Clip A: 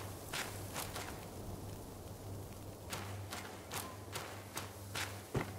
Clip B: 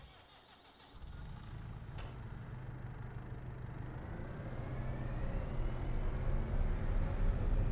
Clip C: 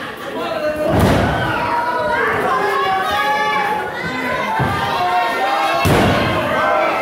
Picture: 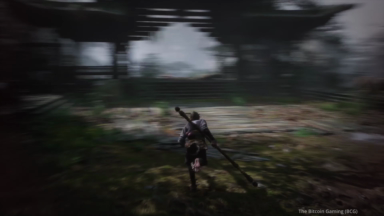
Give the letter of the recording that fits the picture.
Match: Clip A